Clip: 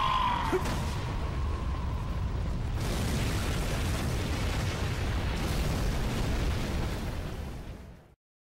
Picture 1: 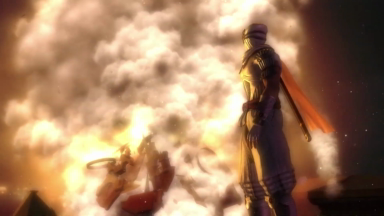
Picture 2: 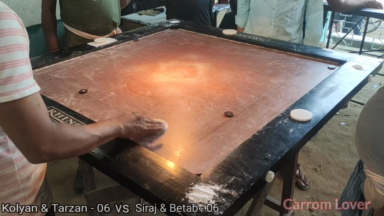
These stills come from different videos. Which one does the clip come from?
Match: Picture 1